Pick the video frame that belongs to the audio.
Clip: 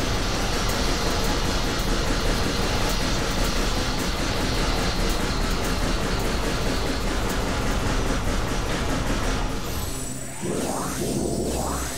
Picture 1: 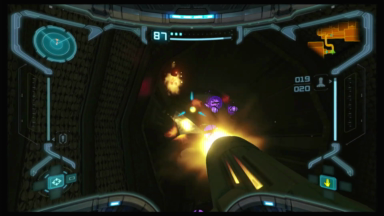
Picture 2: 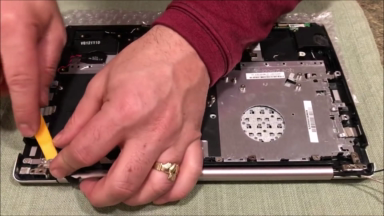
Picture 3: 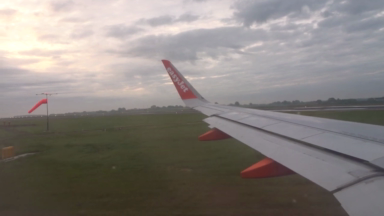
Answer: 1